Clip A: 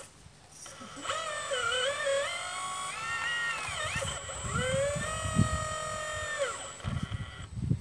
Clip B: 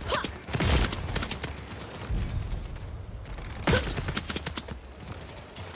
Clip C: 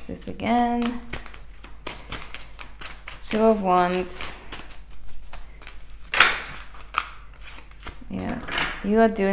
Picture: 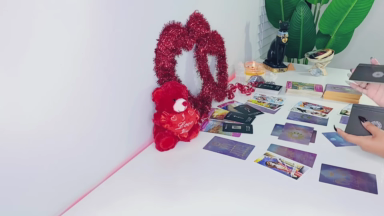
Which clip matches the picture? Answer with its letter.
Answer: C